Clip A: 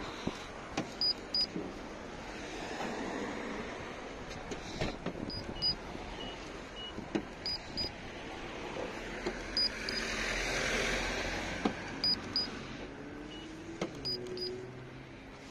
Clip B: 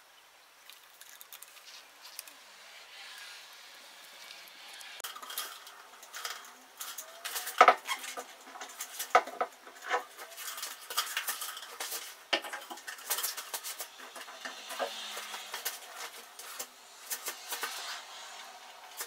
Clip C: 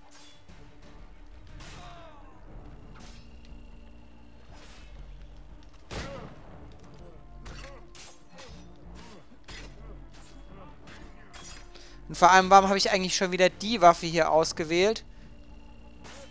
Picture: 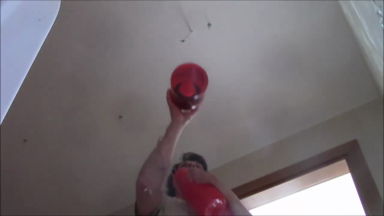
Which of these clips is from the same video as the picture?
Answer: B